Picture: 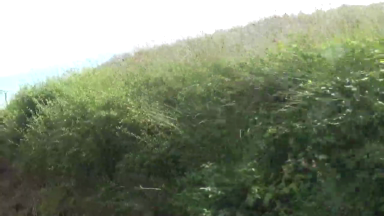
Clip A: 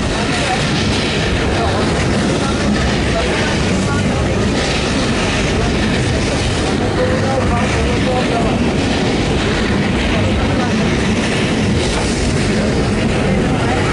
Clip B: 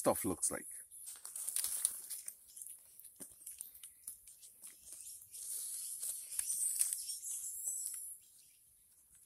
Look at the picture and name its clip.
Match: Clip A